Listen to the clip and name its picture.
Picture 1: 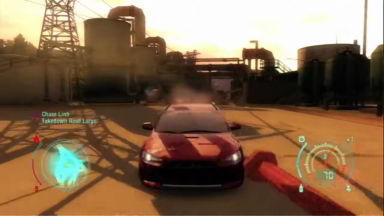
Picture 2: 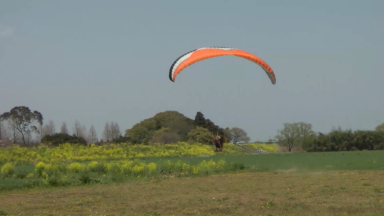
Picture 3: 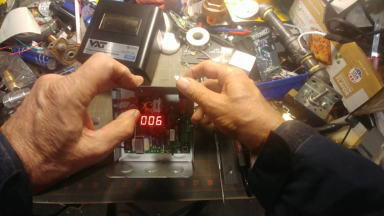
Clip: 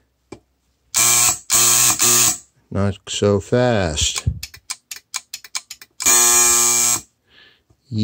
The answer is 3